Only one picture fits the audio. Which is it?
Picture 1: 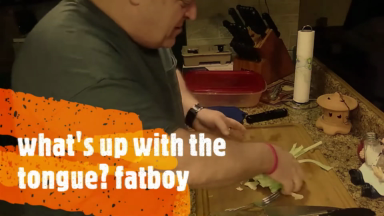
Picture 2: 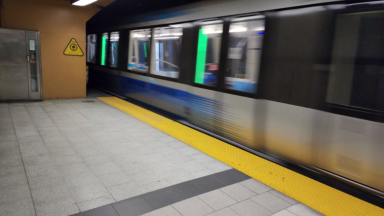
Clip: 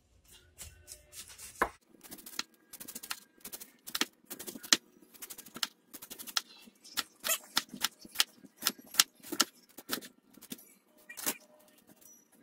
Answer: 1